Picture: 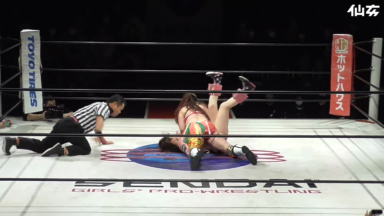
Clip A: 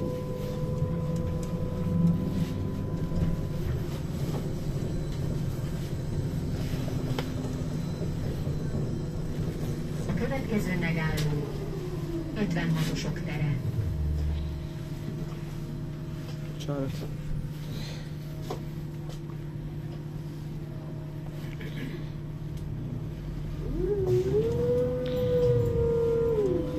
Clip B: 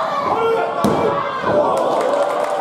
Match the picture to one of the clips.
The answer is B